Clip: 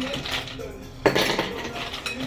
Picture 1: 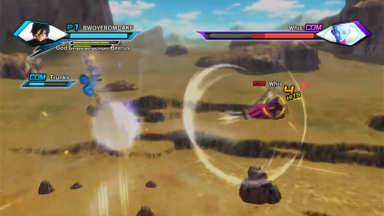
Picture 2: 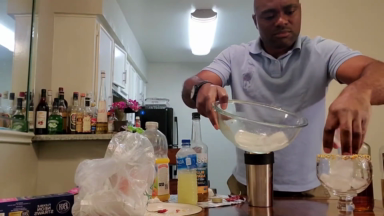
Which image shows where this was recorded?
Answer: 2